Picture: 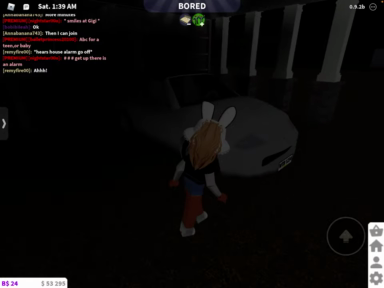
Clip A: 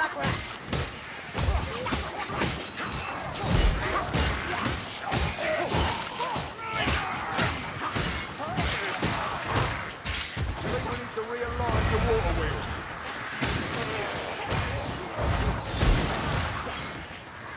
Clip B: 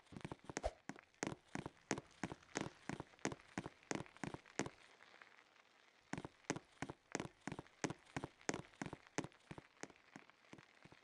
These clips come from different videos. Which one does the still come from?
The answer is B